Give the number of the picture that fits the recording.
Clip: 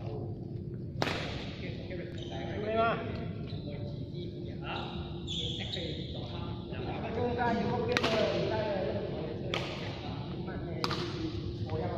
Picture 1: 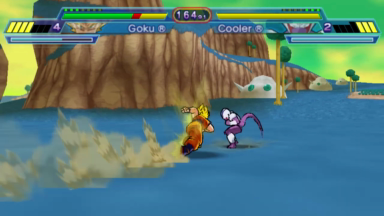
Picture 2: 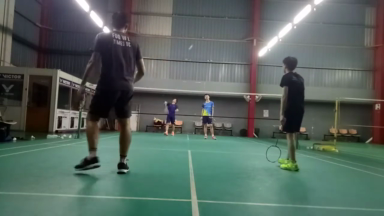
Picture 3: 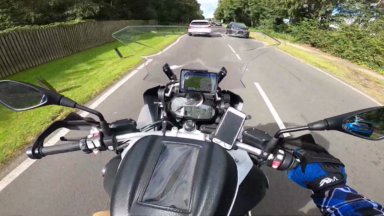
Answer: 2